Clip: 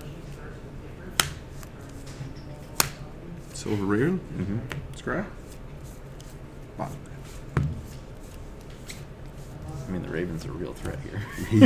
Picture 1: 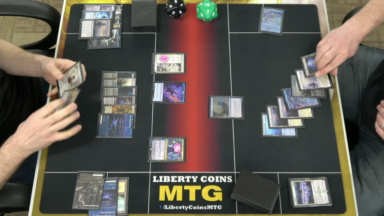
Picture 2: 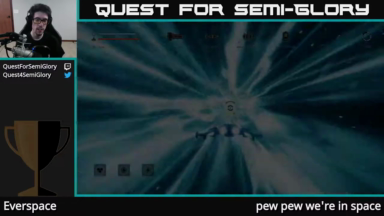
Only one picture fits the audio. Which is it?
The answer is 1